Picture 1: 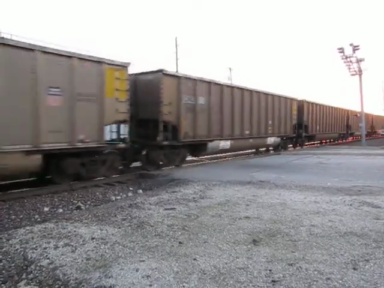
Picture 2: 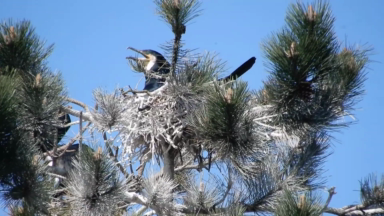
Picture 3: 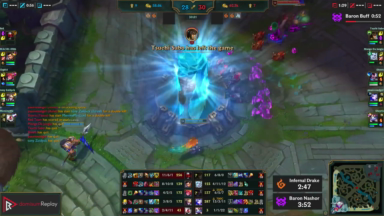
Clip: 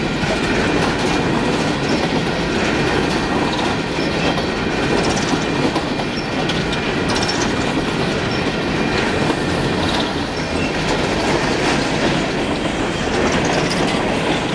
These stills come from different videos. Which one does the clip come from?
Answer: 1